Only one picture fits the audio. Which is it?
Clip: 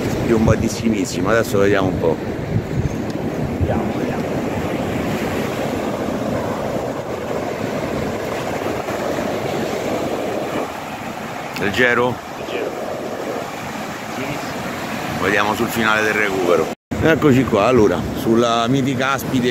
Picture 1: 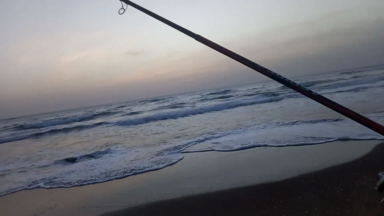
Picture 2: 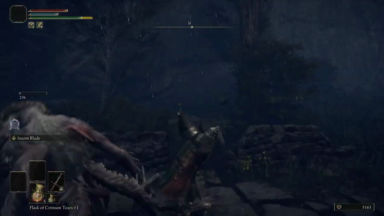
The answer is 1